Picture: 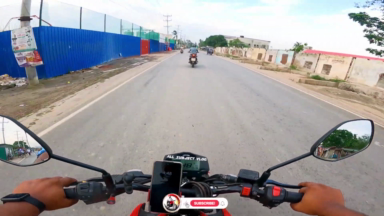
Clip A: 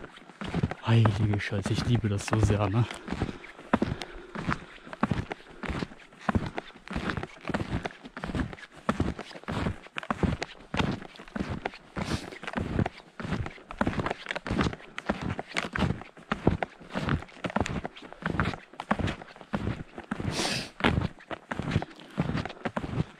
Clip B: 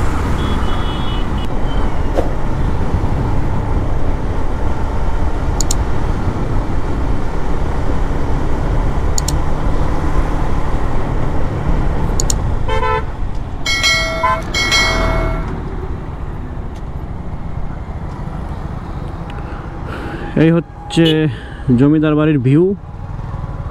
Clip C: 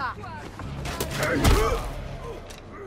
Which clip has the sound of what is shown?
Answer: B